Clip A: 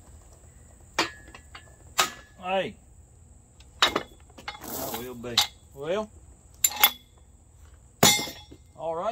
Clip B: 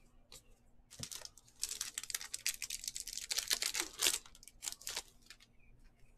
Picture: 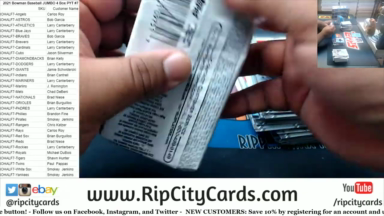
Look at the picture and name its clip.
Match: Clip B